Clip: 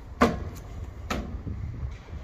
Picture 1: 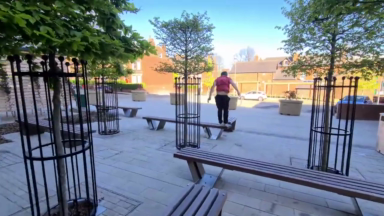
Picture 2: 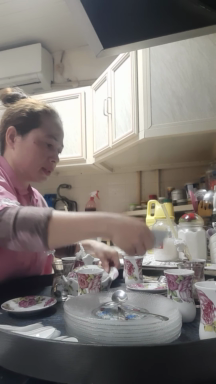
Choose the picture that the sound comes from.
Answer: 1